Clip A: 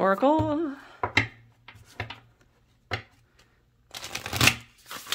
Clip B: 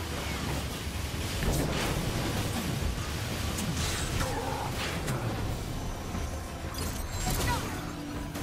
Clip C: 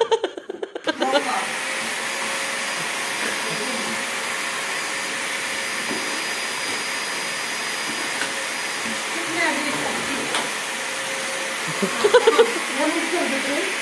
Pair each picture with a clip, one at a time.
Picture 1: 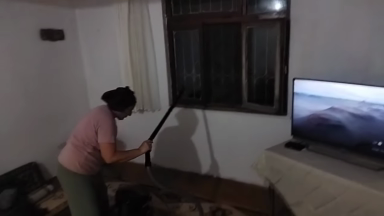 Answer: C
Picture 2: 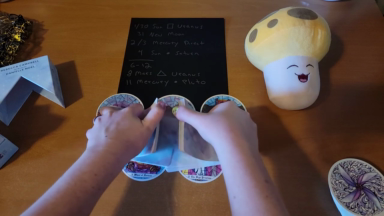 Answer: A